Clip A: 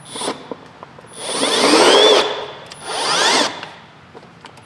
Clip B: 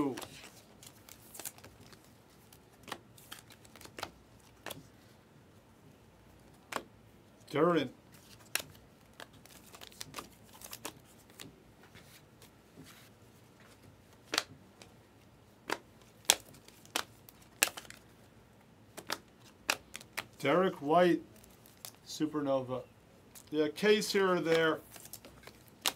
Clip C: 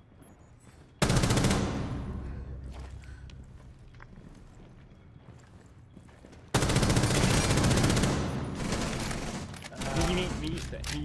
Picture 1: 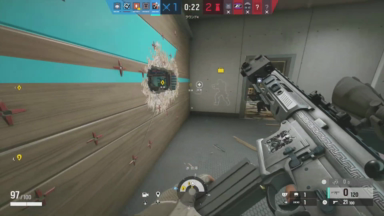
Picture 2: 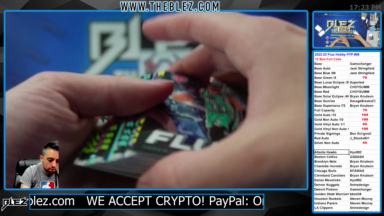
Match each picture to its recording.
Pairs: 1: C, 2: B